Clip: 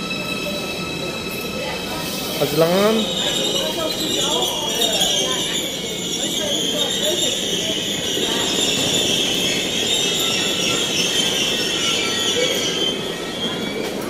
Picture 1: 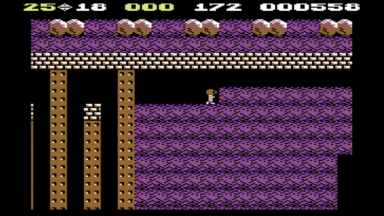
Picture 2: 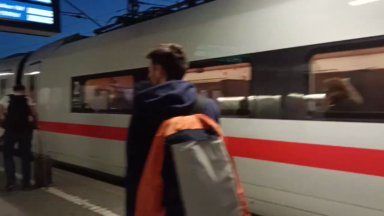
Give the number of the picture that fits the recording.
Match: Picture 2